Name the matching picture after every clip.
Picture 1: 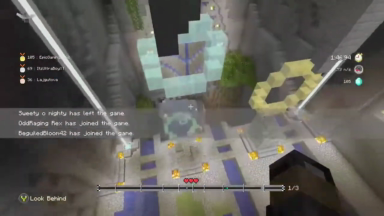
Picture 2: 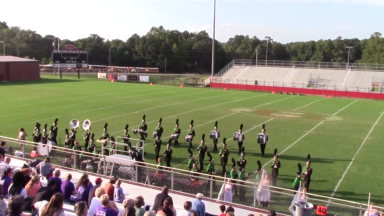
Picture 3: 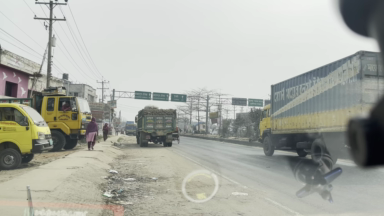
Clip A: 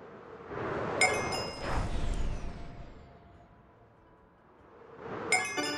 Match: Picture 1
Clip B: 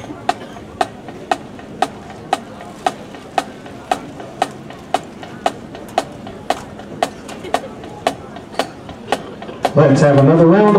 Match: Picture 2